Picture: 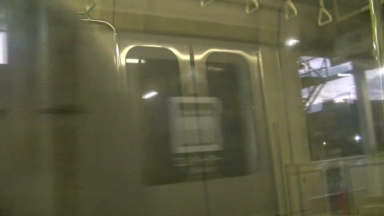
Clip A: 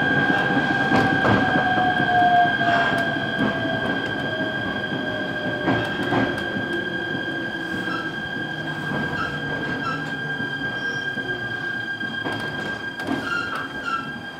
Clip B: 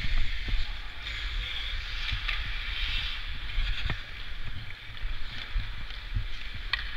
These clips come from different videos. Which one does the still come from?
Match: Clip A